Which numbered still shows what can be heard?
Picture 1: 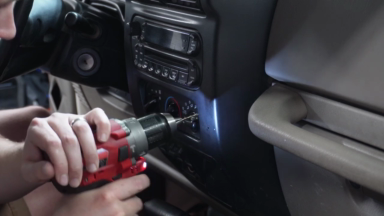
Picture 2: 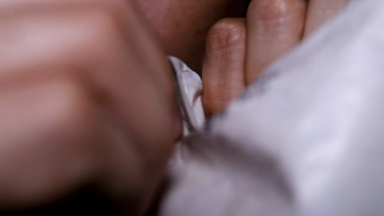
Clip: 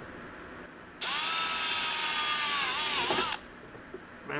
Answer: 1